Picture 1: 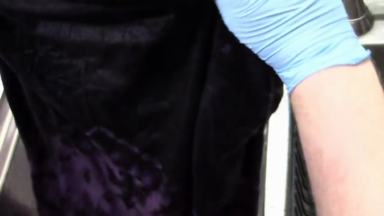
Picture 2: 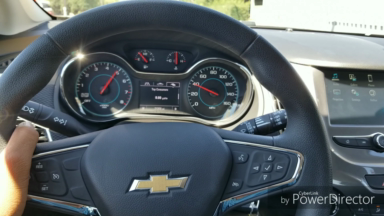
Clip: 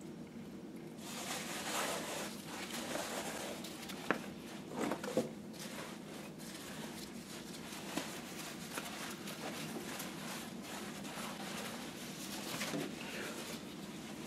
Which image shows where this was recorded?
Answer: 1